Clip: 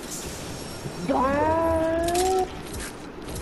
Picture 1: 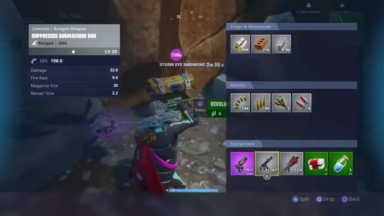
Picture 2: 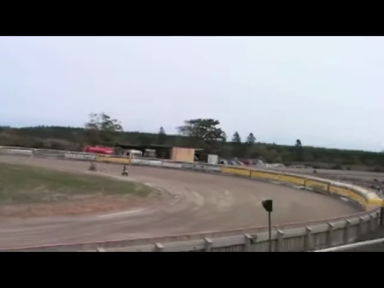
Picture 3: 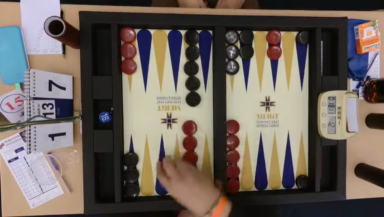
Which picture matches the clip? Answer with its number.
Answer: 1